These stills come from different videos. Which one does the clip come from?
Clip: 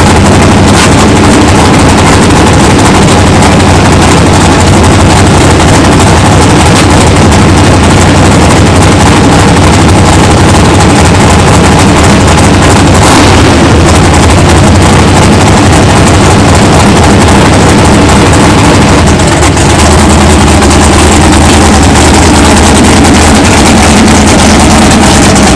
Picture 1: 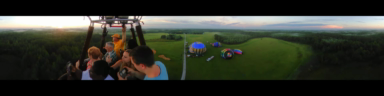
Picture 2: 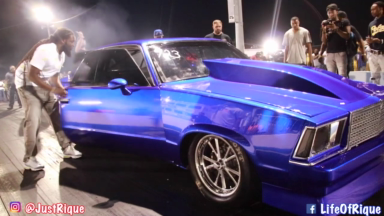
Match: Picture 2